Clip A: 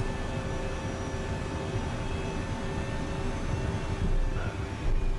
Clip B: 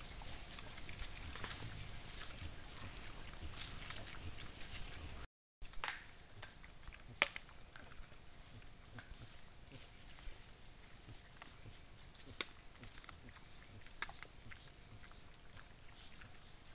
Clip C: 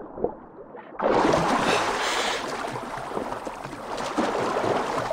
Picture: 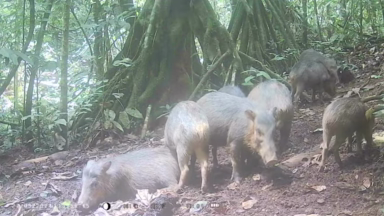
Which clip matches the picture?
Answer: B